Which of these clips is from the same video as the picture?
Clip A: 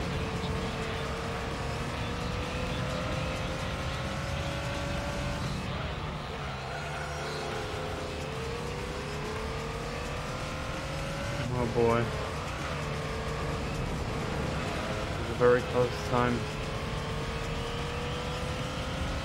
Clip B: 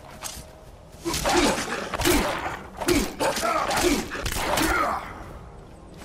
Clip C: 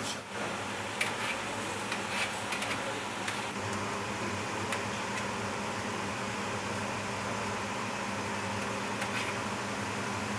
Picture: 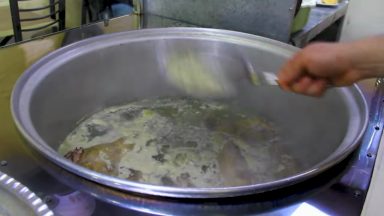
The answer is C